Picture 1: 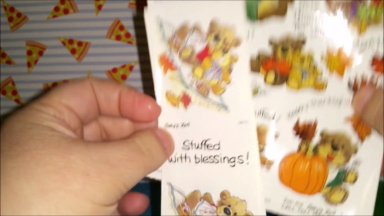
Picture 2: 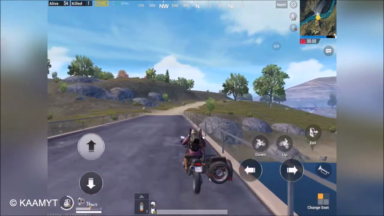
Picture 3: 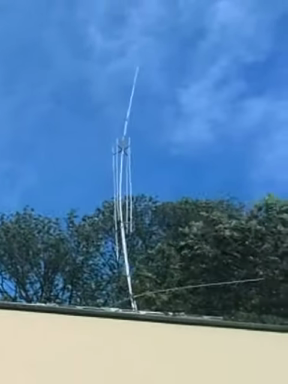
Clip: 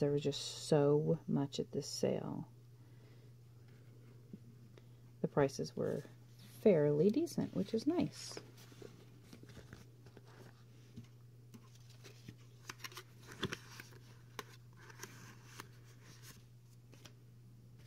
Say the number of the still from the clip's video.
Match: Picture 1